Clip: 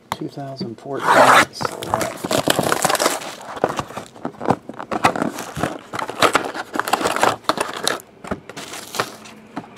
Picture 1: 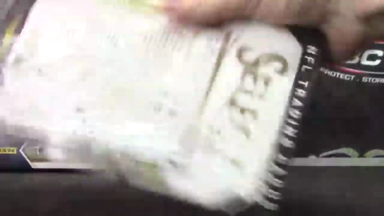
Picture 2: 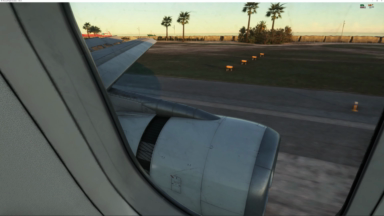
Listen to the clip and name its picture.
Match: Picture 1